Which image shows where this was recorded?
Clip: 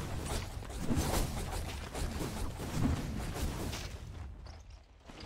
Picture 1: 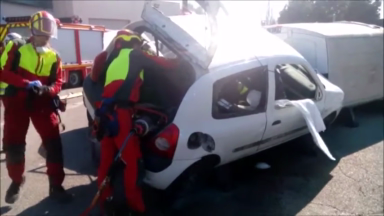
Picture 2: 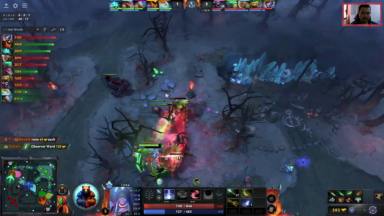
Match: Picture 2